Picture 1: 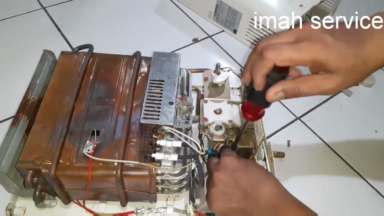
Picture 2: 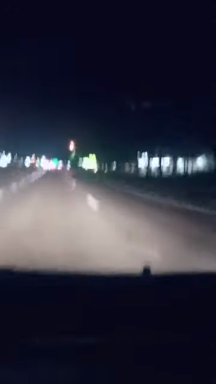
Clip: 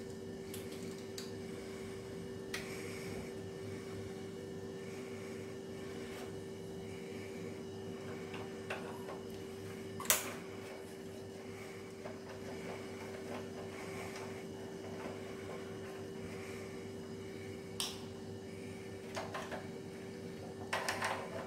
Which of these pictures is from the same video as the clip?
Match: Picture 1